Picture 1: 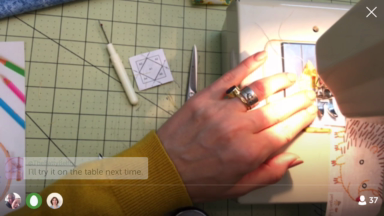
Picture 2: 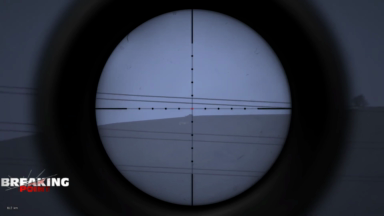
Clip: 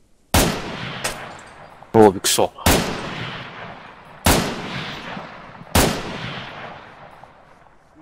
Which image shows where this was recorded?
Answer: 2